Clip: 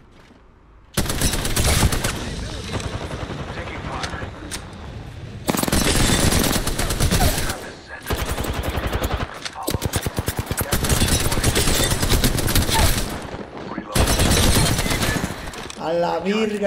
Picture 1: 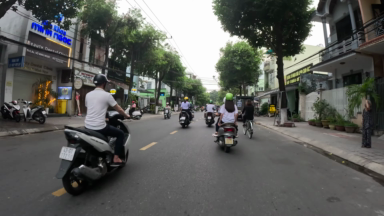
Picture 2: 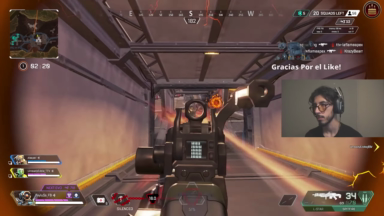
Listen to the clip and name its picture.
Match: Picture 2